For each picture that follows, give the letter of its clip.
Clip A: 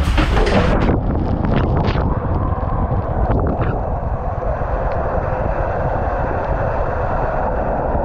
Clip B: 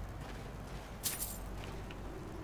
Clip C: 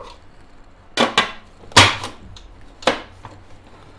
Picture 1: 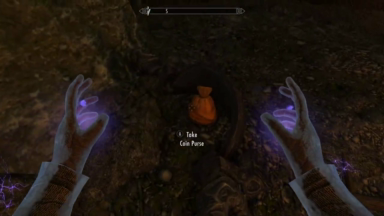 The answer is B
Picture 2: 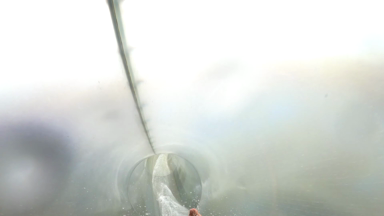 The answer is A